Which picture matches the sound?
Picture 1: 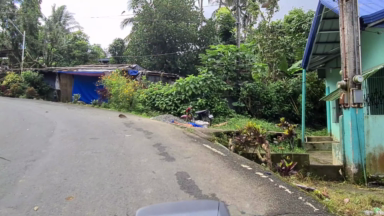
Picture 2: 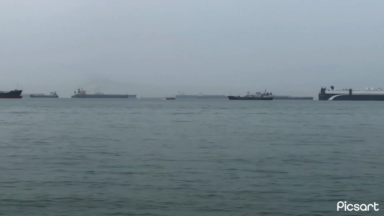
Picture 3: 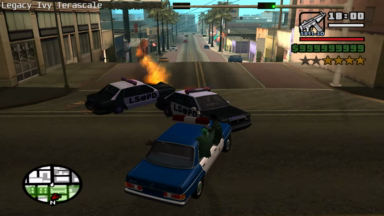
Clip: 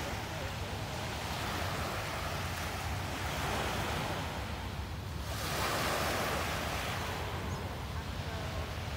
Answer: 2